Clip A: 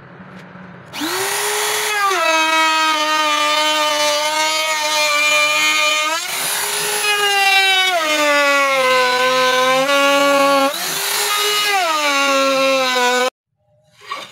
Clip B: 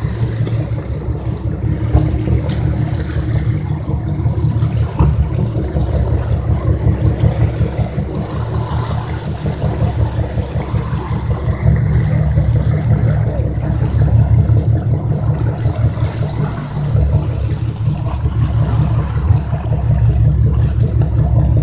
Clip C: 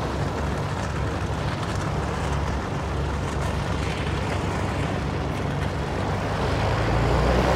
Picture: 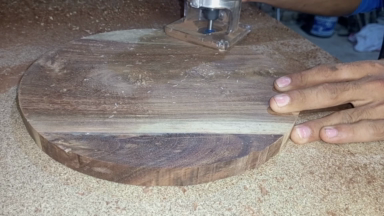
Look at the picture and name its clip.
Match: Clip A